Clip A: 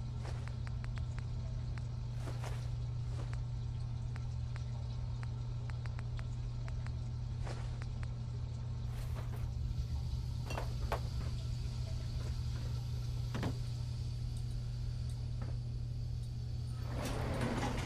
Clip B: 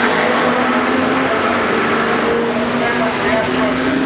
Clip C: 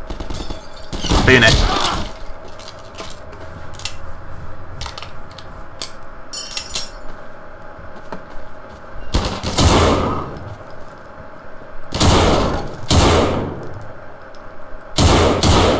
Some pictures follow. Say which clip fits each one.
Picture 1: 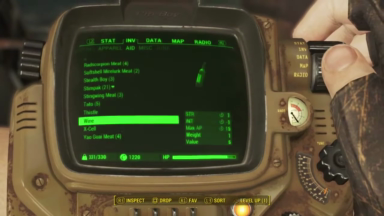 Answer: A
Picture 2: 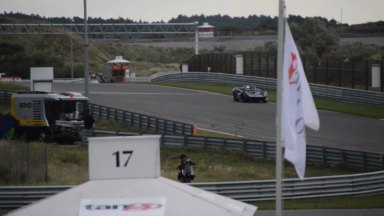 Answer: B